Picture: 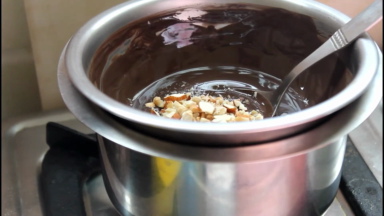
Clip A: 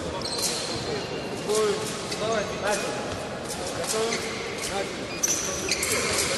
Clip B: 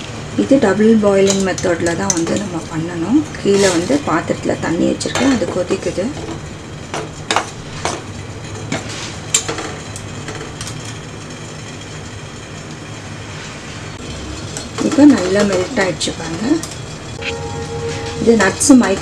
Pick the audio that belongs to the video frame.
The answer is B